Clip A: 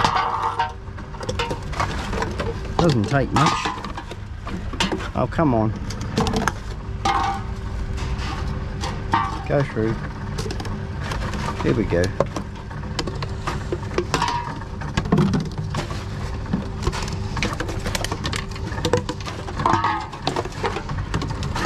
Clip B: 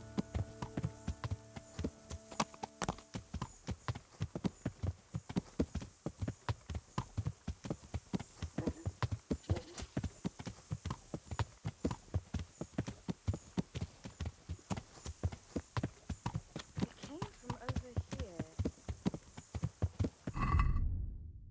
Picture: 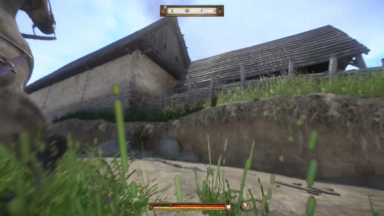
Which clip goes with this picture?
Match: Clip B